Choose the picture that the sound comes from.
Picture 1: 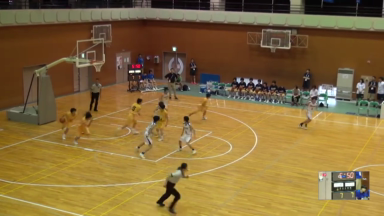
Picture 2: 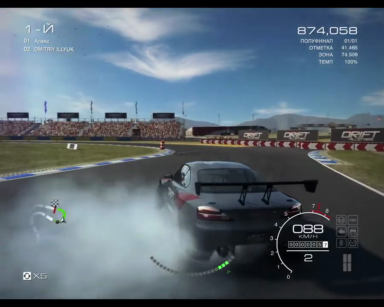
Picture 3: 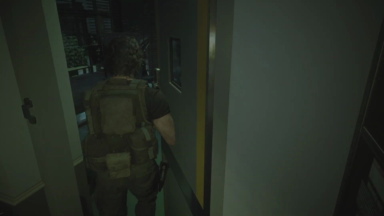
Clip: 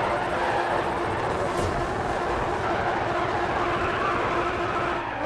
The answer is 2